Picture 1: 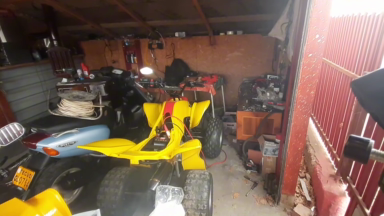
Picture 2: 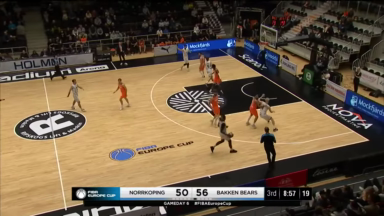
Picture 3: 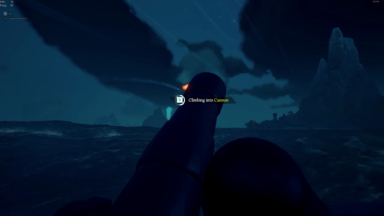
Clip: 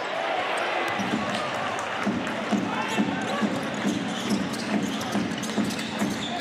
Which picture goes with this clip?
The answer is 2